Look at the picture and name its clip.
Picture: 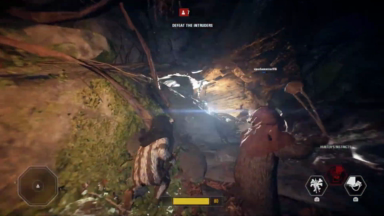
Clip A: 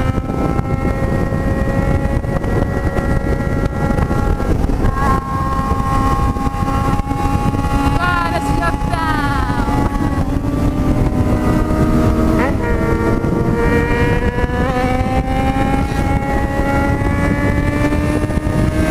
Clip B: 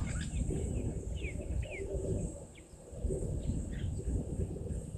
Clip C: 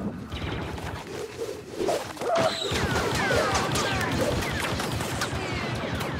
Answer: C